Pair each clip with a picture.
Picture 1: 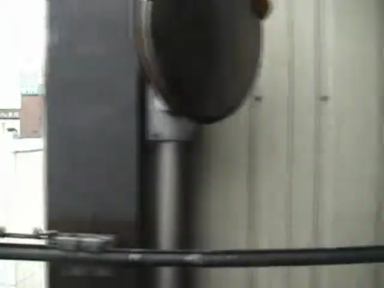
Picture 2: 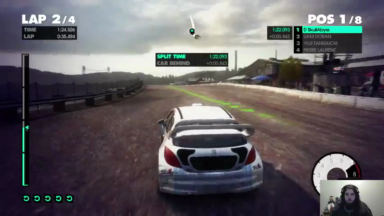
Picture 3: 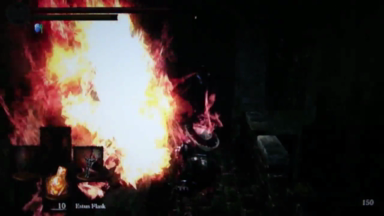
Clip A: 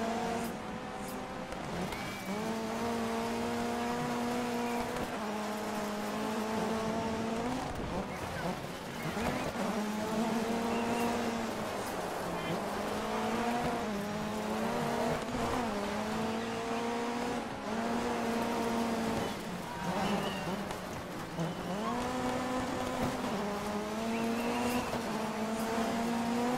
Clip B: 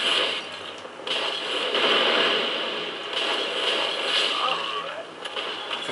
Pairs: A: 2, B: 3